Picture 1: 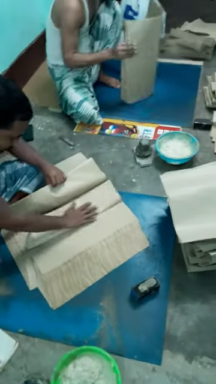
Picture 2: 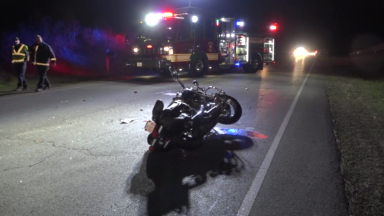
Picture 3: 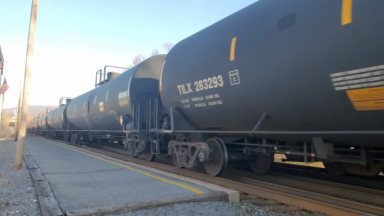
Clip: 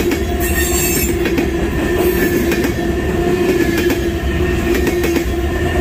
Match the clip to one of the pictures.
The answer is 3